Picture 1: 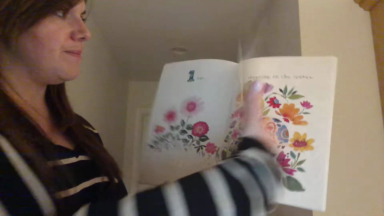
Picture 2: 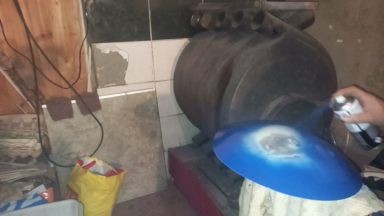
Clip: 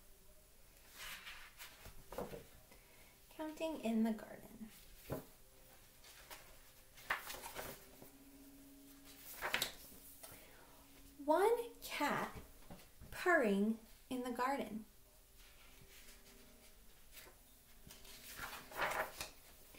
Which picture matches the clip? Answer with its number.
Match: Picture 1